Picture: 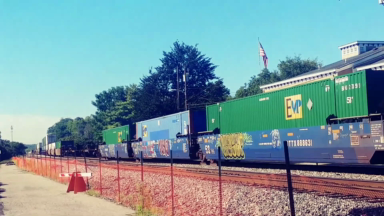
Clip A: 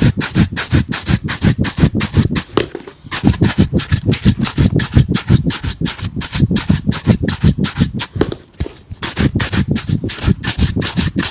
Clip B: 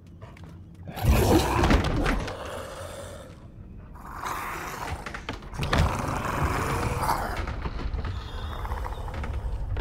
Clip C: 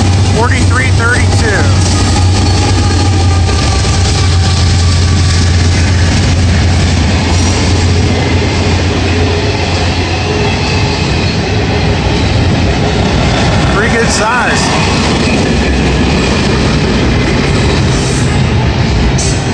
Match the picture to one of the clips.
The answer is C